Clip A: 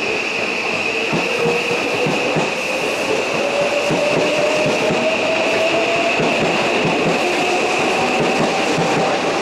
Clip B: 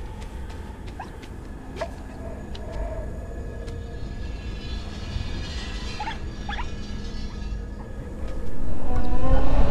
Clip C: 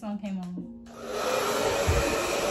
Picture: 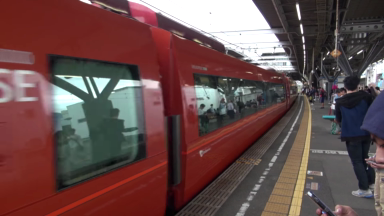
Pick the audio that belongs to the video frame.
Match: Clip A